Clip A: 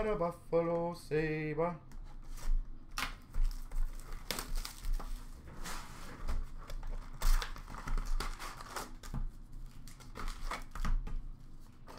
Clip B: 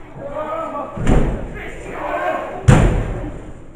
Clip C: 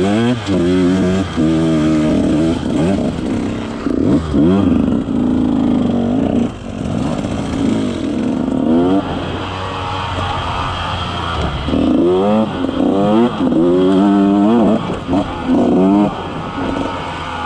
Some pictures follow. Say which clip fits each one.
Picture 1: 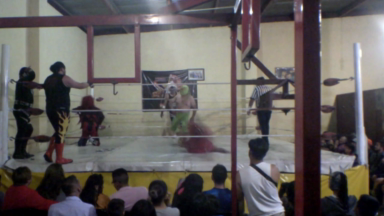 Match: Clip B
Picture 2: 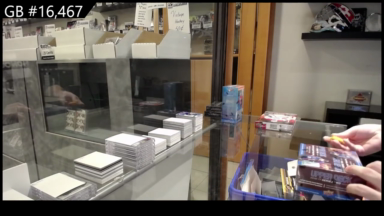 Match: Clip A